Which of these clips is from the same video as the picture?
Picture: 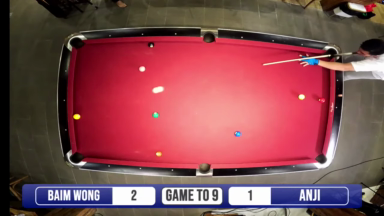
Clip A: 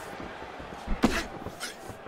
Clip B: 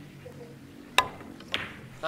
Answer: B